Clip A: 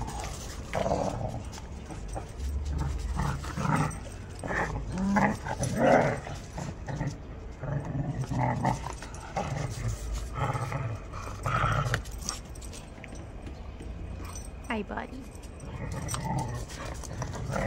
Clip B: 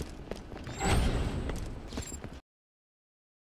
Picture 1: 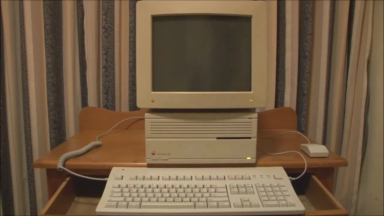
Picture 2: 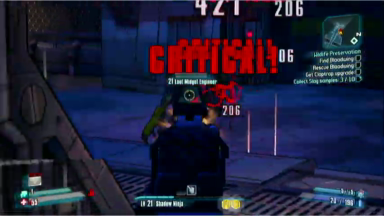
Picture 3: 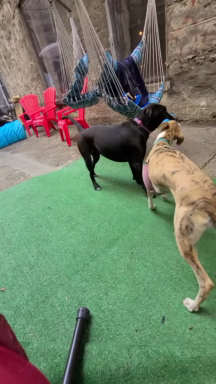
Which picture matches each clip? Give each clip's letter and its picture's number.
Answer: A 3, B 2